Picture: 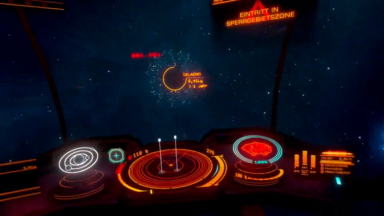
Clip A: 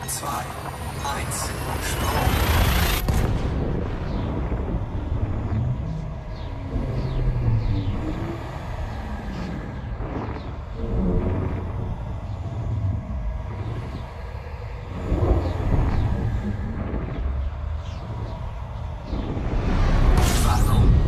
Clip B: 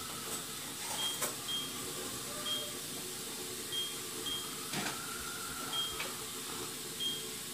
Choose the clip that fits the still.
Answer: A